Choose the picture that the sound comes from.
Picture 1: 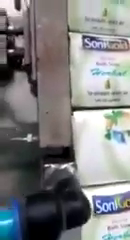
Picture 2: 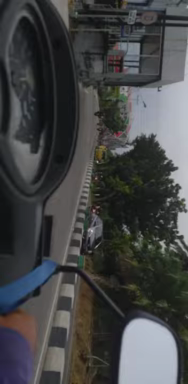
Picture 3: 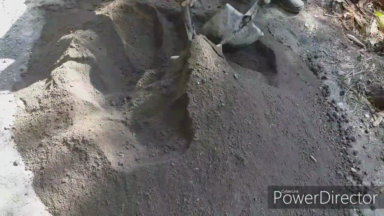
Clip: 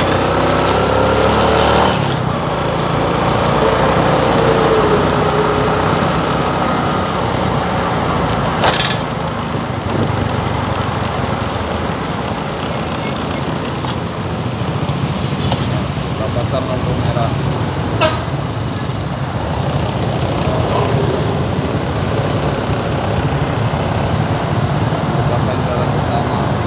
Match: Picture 2